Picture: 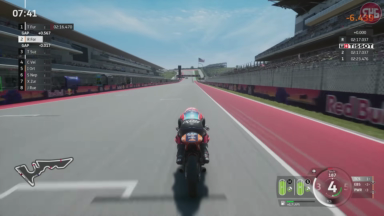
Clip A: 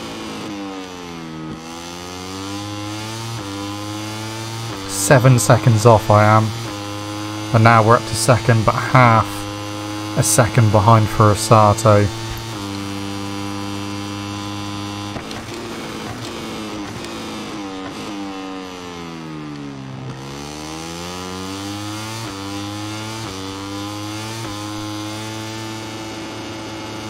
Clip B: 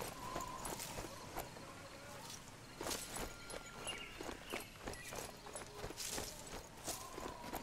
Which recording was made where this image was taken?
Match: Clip A